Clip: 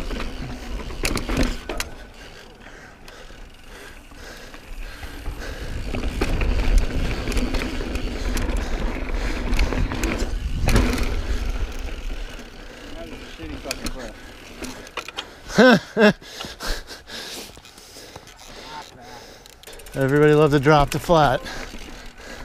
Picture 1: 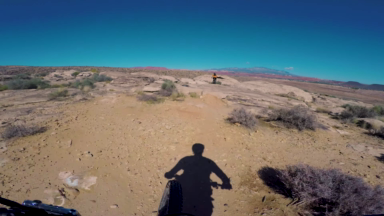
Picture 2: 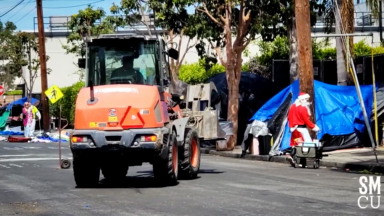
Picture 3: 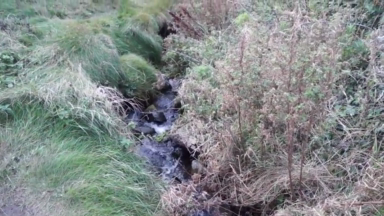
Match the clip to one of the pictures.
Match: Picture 1